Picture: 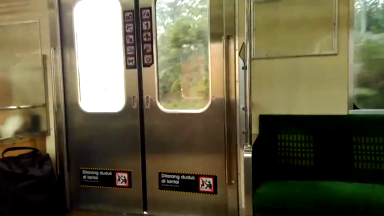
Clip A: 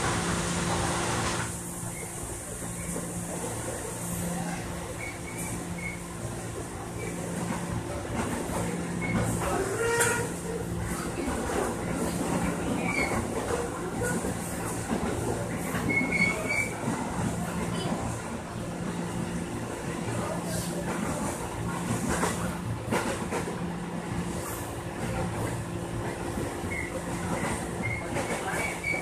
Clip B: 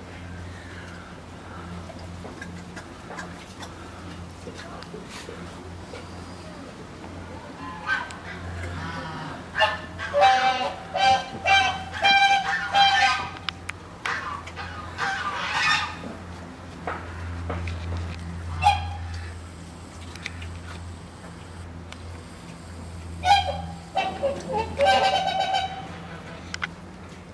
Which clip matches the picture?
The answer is A